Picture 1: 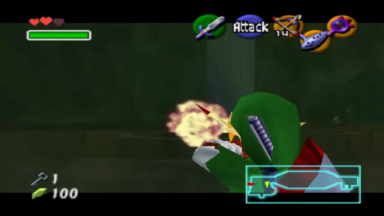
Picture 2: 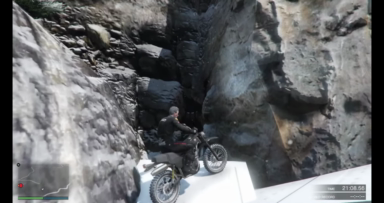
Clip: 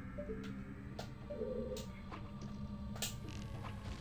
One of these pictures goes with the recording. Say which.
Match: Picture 1